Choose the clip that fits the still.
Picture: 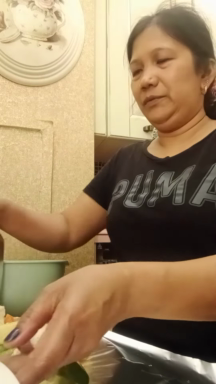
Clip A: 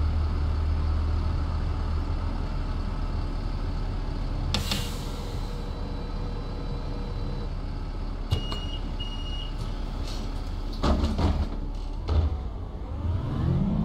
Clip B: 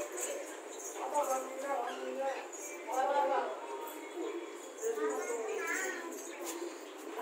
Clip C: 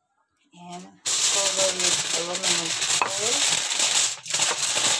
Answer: C